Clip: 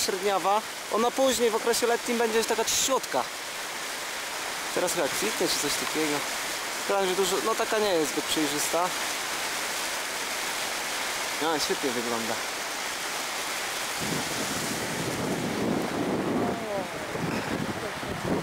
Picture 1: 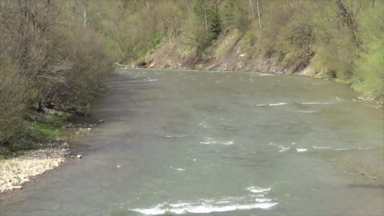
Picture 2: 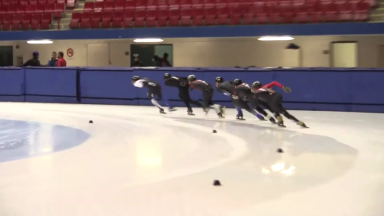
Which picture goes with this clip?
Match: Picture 1